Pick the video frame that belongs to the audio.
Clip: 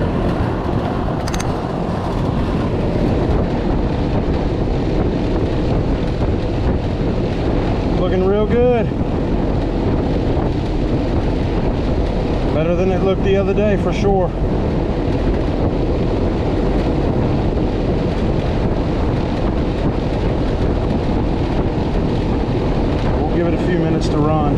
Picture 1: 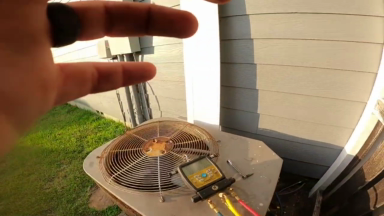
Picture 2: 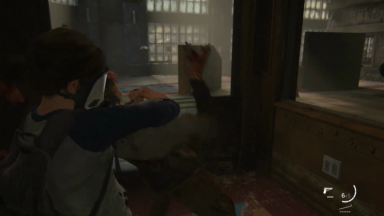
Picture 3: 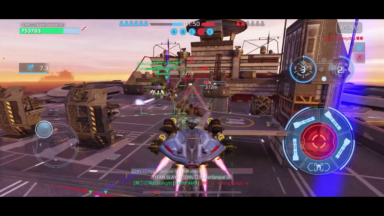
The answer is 1